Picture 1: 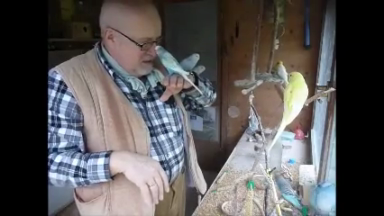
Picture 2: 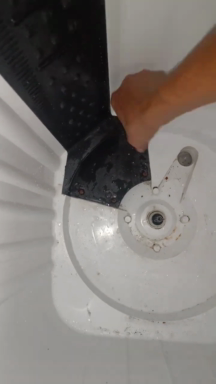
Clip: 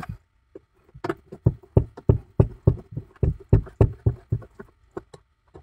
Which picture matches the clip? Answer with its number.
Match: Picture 2